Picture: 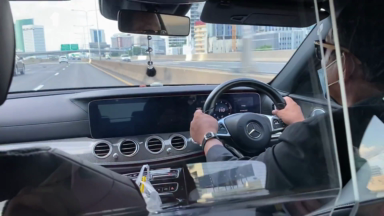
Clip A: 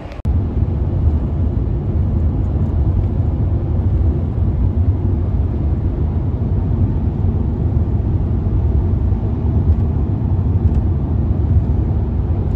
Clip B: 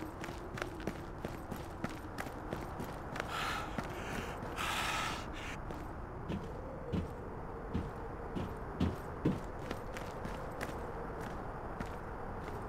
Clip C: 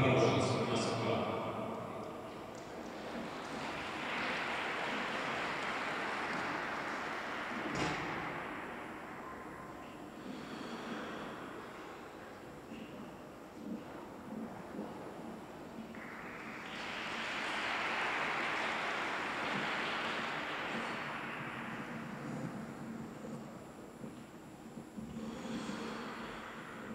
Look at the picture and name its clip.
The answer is A